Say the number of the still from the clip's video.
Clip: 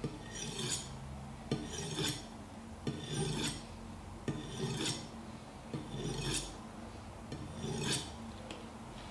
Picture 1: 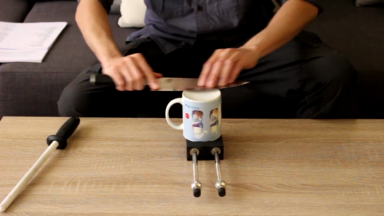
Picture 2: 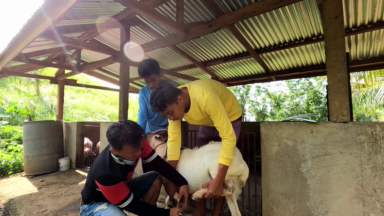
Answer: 1